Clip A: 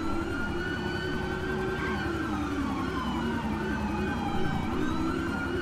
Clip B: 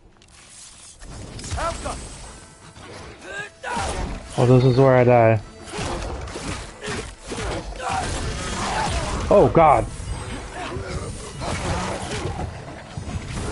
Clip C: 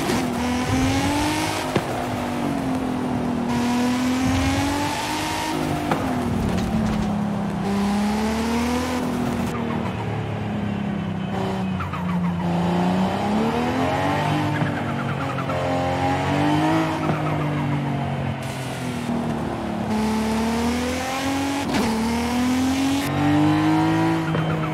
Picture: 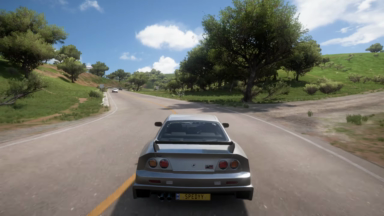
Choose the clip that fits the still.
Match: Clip C